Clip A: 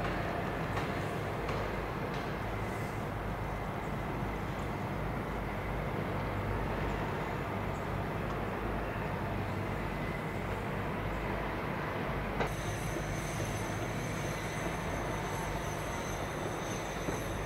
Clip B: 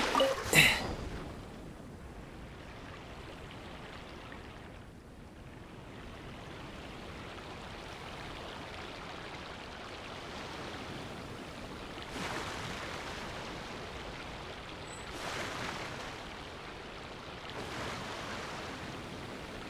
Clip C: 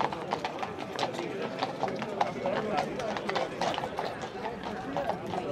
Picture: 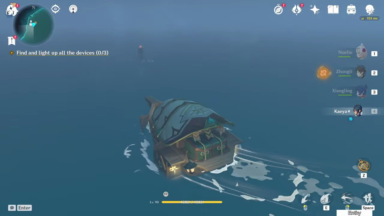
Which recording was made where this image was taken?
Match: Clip B